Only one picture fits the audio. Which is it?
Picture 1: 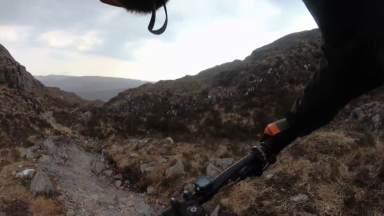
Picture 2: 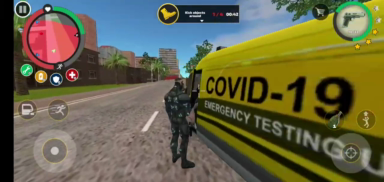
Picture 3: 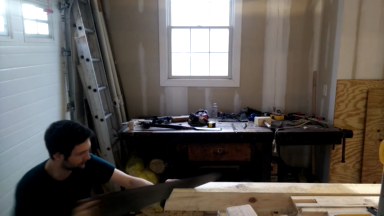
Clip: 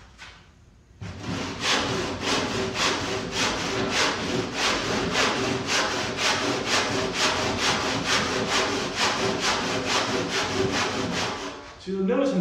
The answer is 3